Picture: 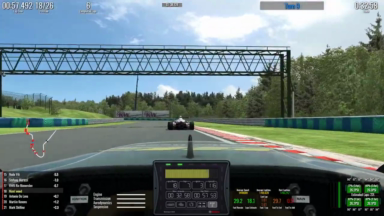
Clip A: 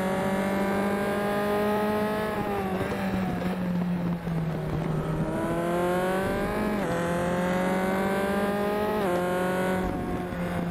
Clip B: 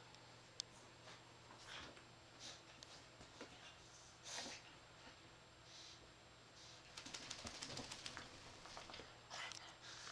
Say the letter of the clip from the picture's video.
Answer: A